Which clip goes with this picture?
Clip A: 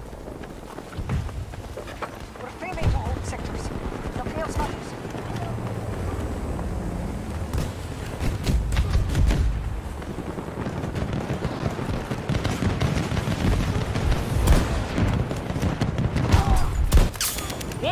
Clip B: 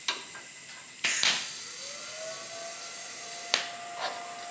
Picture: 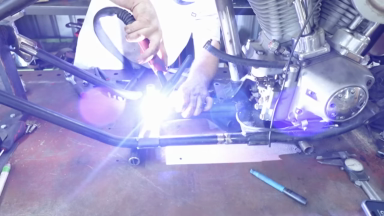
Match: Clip B